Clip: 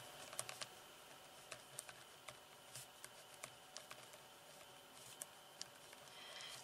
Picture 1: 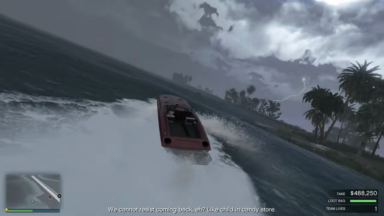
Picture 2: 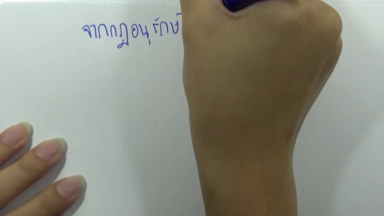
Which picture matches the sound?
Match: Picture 2